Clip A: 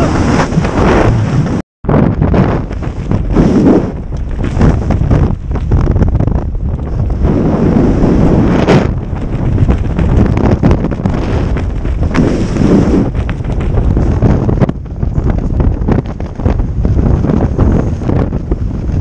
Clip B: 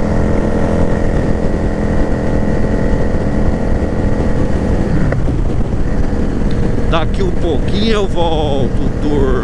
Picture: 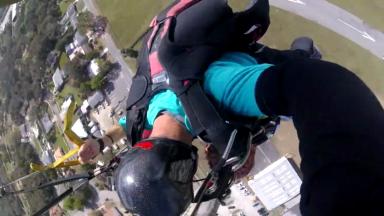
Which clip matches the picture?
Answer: A